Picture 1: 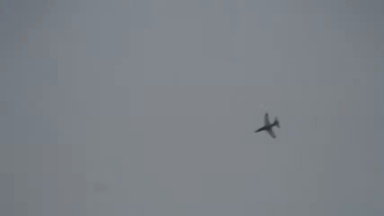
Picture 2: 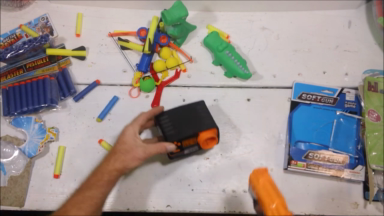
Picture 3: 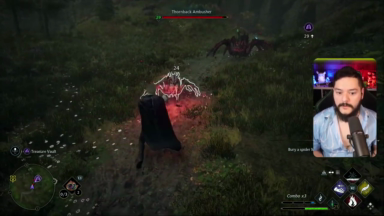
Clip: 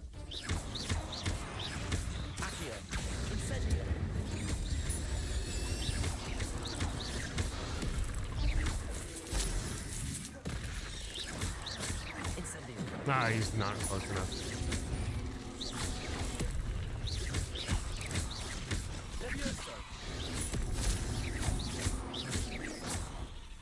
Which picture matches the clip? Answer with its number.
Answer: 3